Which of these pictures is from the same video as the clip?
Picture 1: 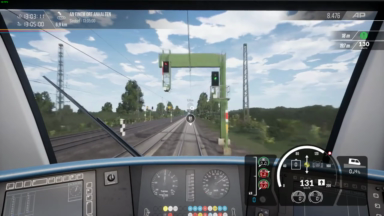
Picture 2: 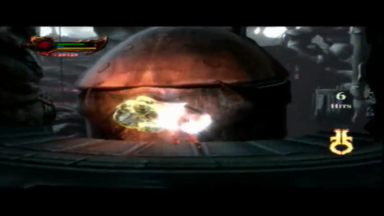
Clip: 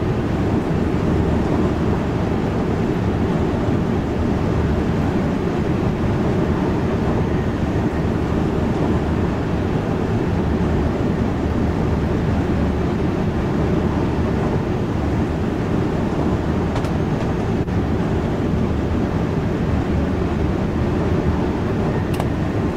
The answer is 1